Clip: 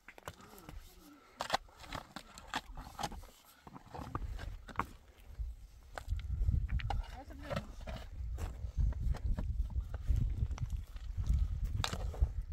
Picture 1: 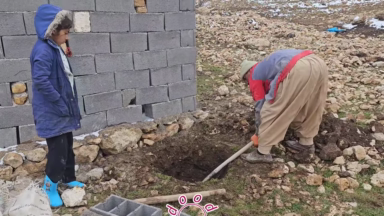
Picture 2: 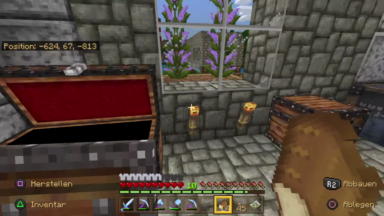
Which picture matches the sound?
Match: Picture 1